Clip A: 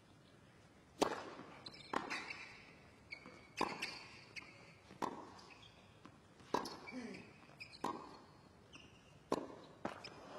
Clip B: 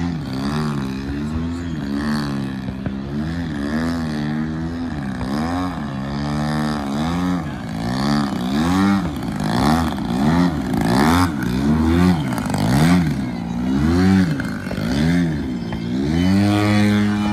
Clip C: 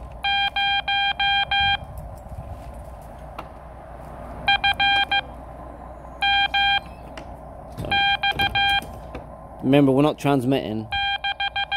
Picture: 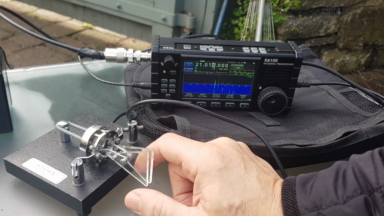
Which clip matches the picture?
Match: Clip C